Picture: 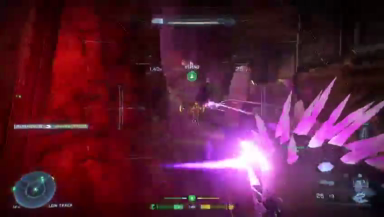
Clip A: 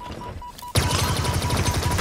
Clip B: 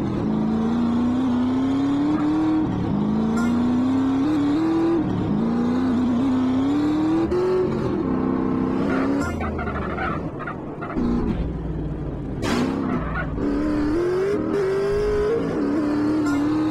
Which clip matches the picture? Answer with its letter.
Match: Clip A